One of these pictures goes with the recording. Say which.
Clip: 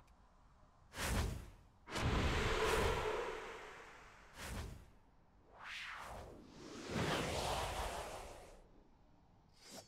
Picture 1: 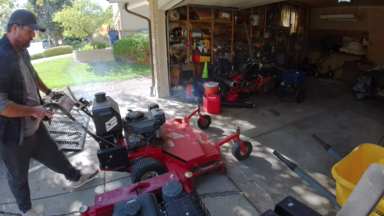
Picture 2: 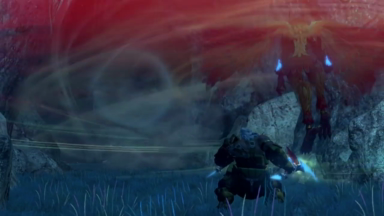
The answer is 2